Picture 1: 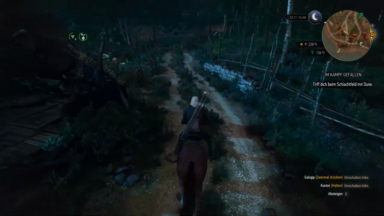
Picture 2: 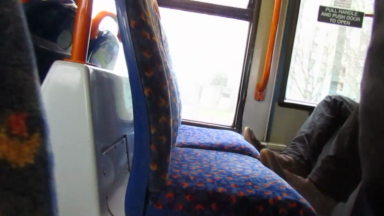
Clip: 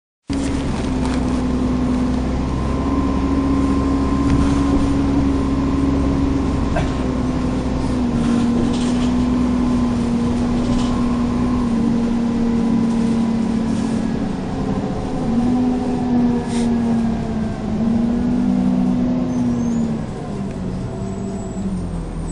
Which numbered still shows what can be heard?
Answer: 2